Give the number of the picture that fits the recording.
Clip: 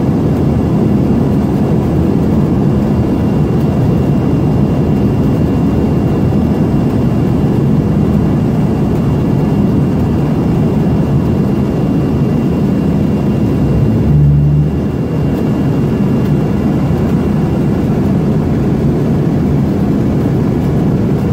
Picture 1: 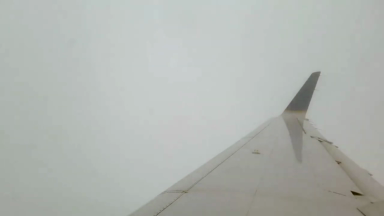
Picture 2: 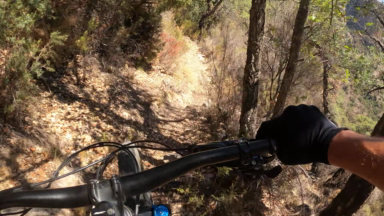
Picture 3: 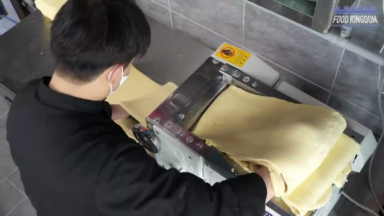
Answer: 1